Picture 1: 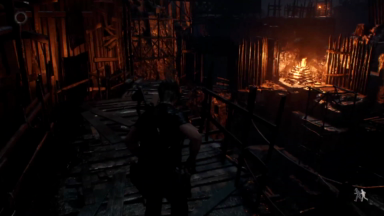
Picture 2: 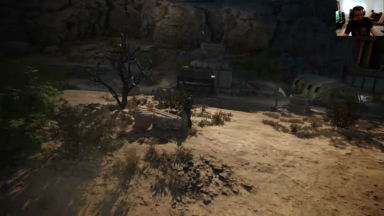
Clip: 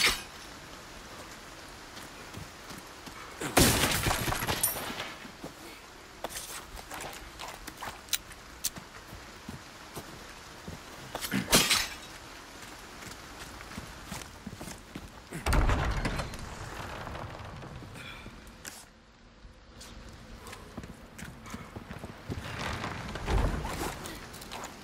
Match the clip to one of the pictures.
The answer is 1